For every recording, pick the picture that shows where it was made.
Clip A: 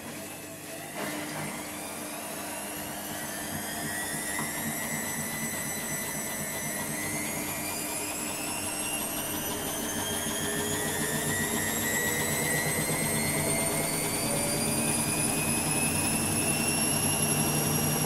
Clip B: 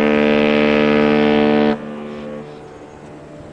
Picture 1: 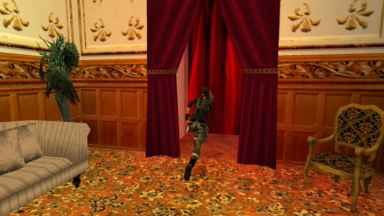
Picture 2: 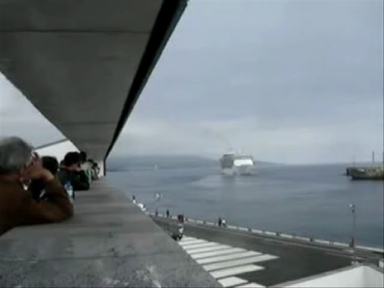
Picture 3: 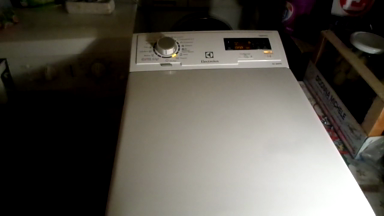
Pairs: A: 3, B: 2